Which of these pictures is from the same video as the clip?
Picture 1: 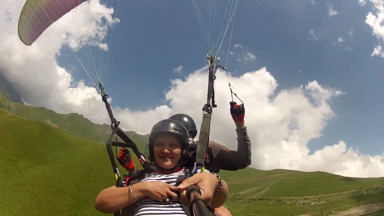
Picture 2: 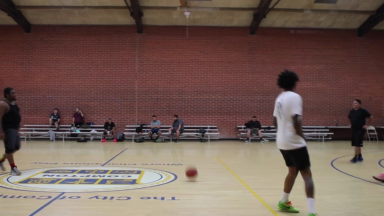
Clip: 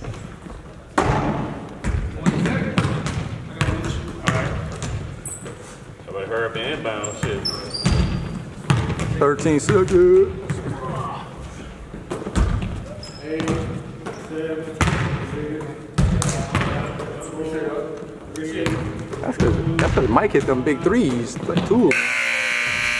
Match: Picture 2